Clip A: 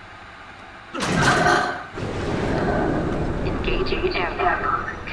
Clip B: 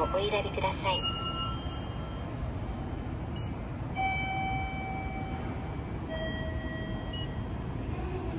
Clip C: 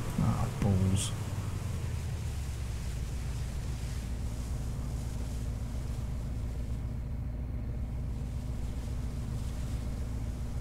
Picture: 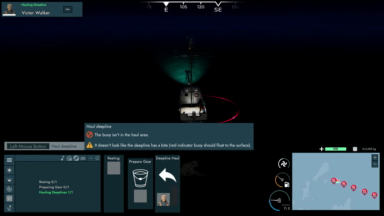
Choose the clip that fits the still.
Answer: C